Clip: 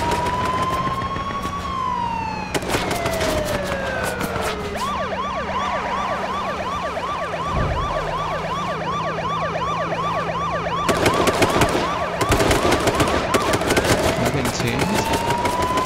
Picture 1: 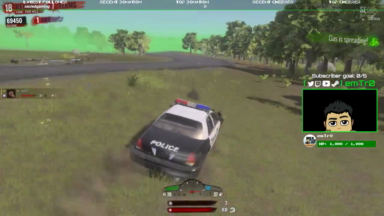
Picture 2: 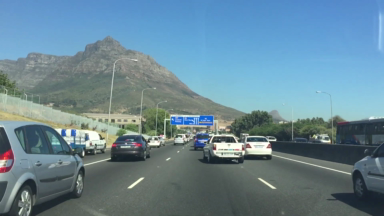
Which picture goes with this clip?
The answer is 1